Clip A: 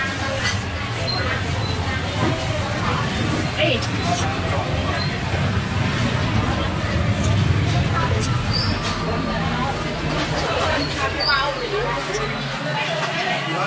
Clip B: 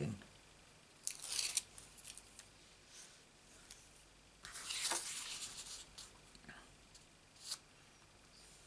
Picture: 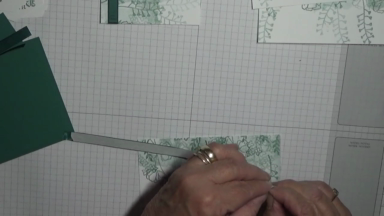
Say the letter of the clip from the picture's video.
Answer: B